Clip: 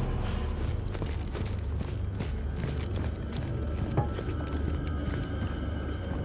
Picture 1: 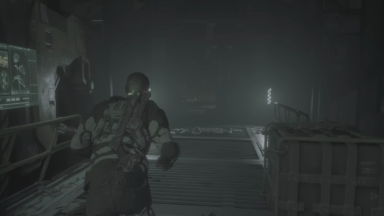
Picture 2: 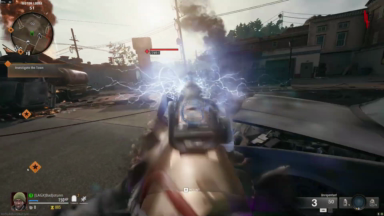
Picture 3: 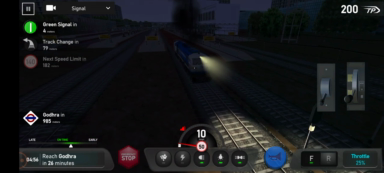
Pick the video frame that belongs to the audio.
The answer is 1